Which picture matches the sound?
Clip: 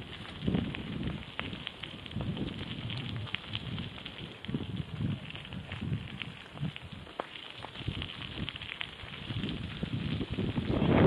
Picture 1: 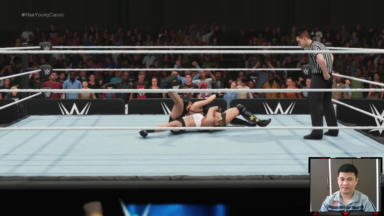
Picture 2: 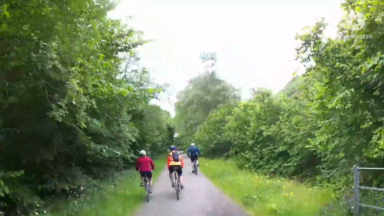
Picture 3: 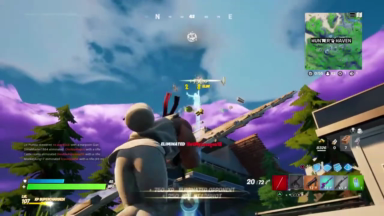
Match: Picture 2